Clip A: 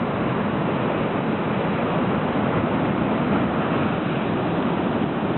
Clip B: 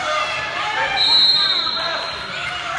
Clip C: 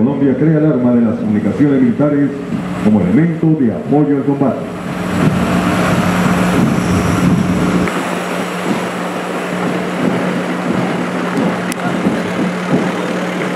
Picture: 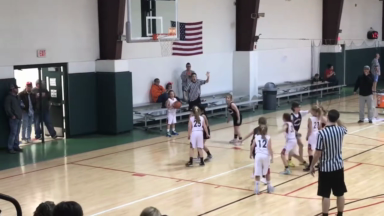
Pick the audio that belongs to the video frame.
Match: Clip B